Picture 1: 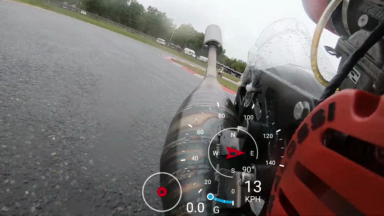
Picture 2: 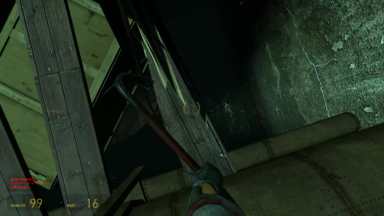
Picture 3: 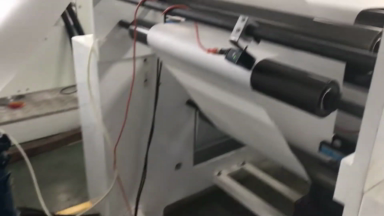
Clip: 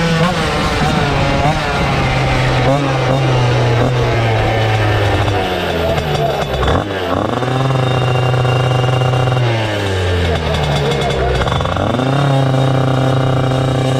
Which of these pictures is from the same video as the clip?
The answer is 1